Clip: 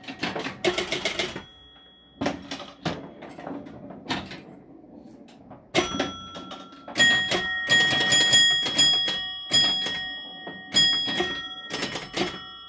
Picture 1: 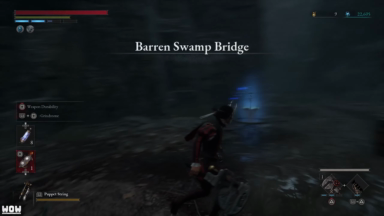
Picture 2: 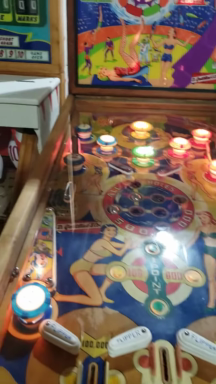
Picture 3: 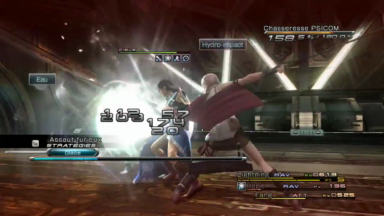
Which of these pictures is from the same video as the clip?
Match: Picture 2